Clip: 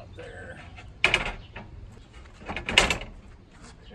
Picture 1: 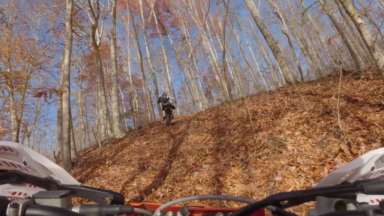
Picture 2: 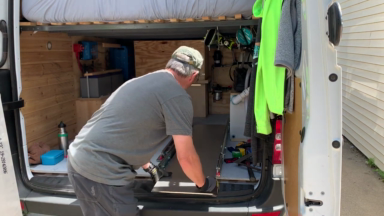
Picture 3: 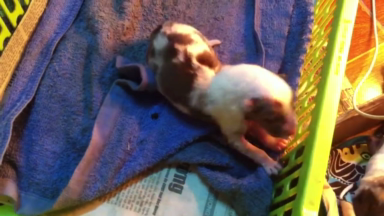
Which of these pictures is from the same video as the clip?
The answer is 2